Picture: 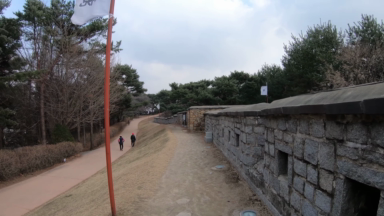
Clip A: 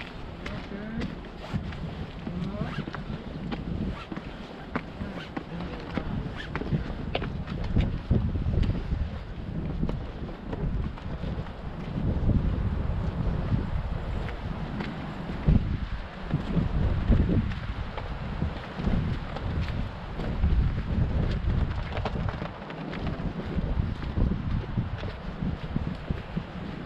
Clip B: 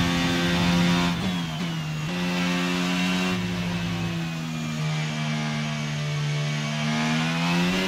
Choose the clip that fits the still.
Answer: A